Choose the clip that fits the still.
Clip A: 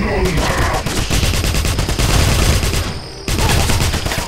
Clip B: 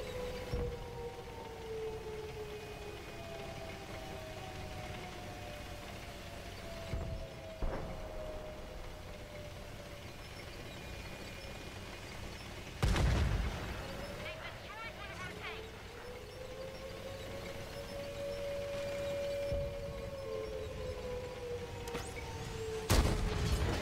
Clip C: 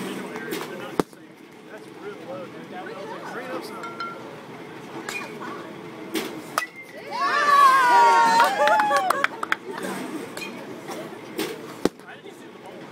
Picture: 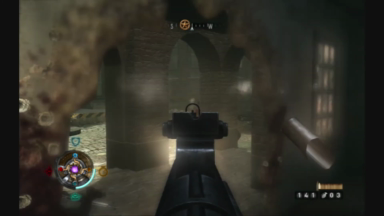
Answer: A